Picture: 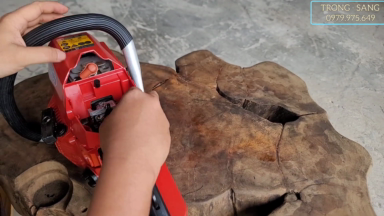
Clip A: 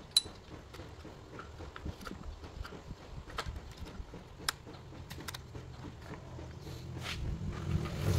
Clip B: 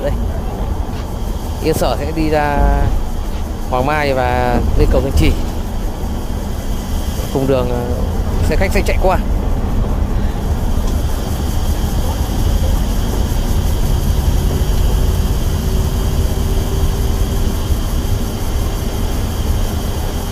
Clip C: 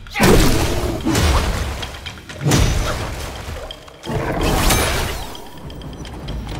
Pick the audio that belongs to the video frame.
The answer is A